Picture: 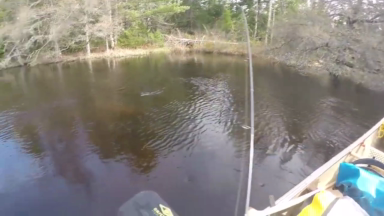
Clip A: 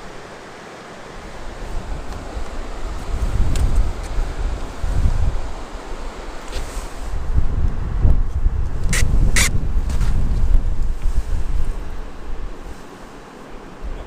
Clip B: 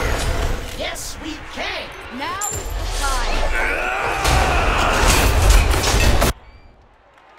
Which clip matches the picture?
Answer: A